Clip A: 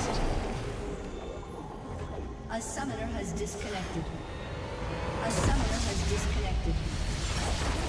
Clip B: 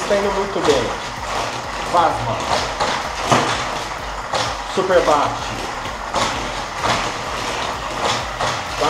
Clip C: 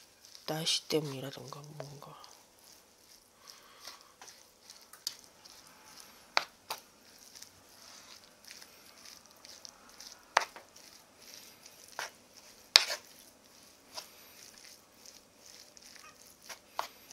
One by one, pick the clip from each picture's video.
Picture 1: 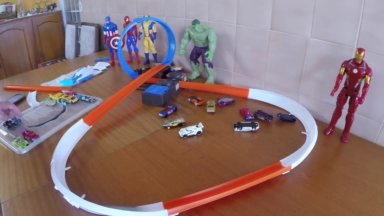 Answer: B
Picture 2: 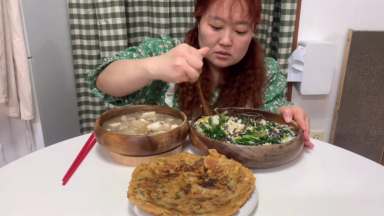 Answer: C